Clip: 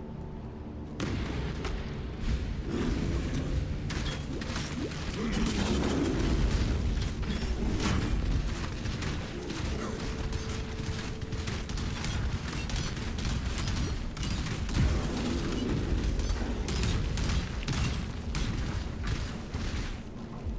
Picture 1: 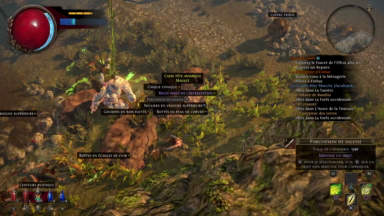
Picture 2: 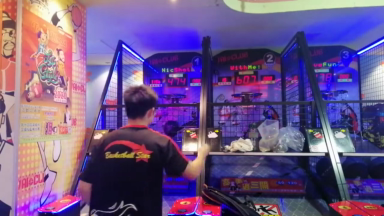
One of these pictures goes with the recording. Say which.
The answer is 1